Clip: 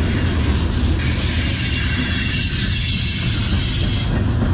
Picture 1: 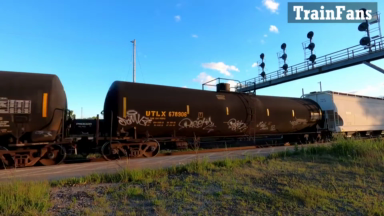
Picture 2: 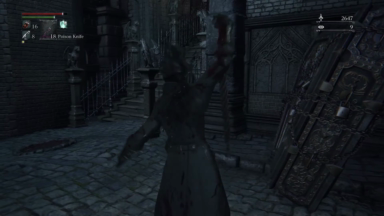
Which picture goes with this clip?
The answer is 1